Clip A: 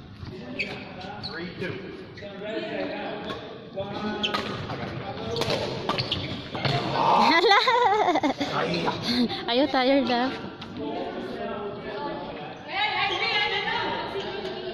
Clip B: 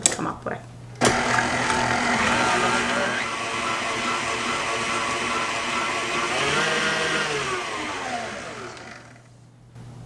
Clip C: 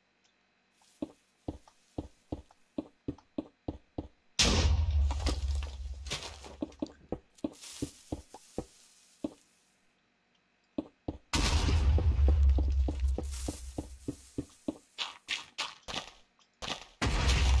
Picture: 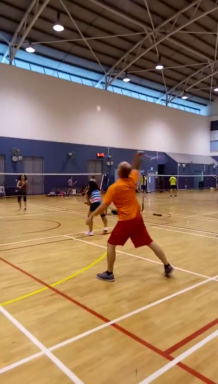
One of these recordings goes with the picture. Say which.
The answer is A